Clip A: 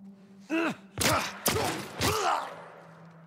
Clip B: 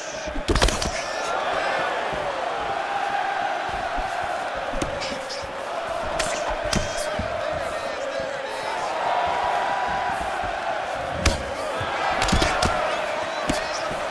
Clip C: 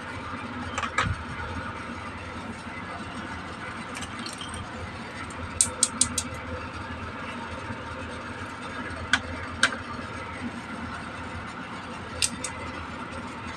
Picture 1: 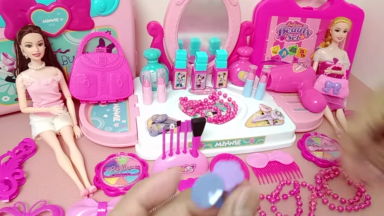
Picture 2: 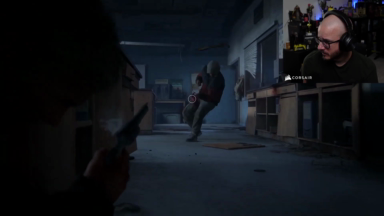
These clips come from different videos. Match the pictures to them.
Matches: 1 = C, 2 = A